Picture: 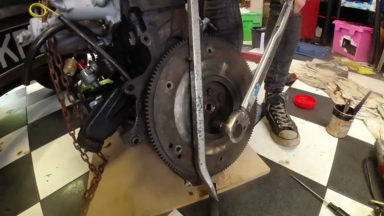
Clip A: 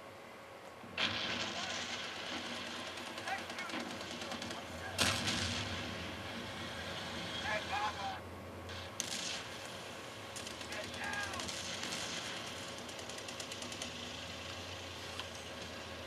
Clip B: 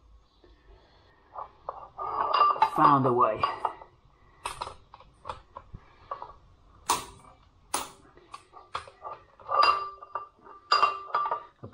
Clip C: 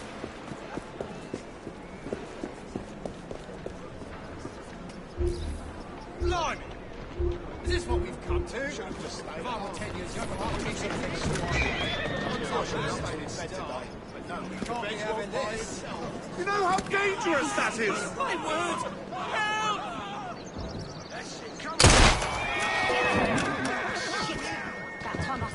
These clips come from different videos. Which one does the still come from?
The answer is B